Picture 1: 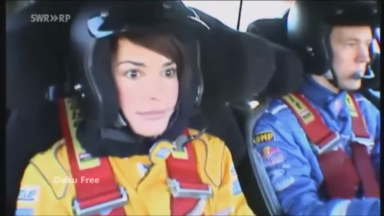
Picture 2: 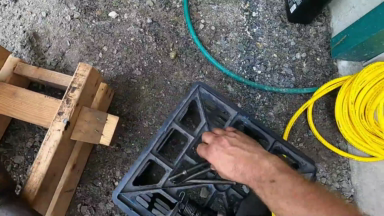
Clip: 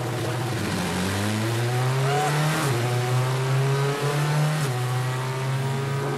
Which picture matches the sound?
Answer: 1